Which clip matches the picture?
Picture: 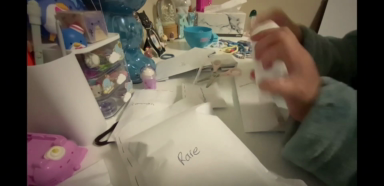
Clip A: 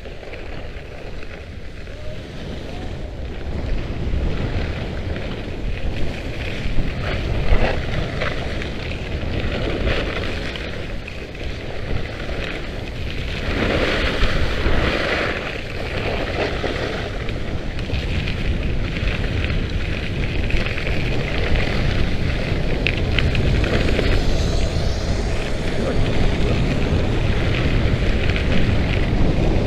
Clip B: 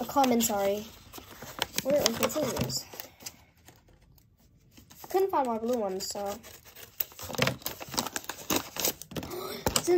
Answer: B